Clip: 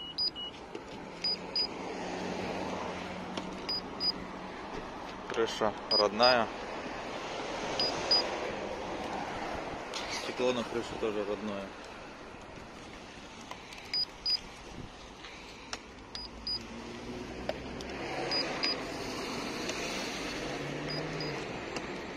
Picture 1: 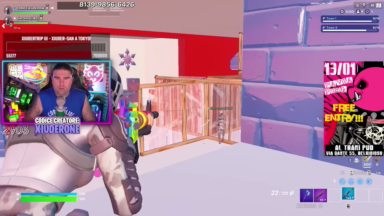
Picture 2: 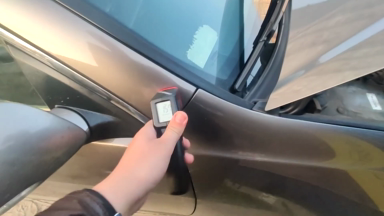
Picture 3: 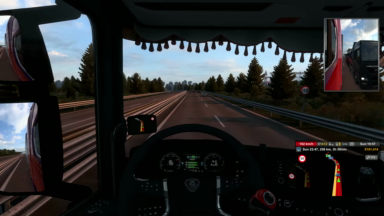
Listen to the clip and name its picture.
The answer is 2